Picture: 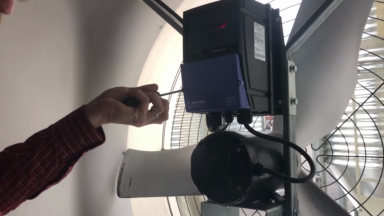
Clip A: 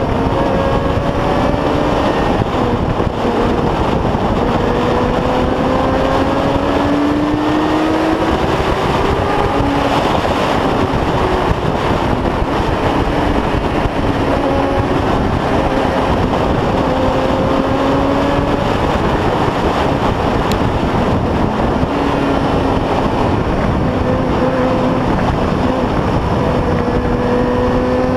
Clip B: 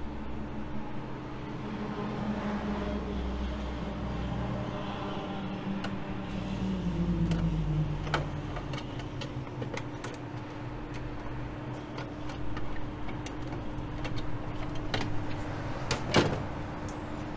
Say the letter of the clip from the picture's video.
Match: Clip B